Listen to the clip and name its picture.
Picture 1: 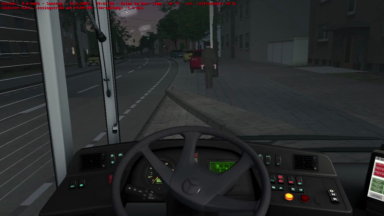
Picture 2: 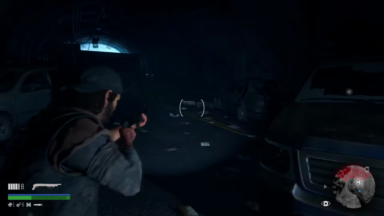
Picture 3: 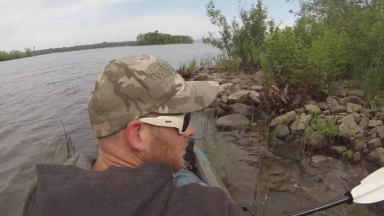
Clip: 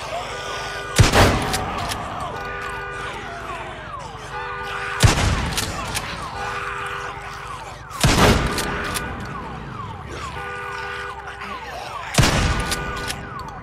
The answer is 2